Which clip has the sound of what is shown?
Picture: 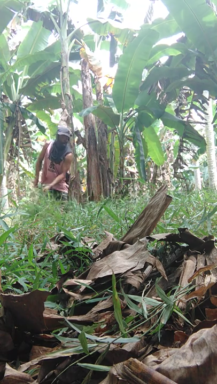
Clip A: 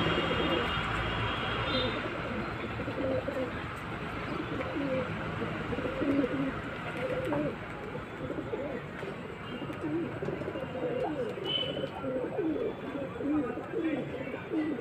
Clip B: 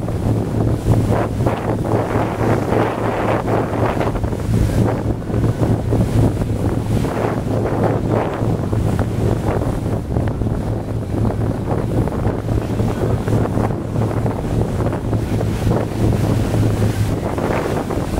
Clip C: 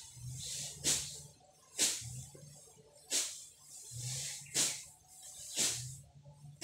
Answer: C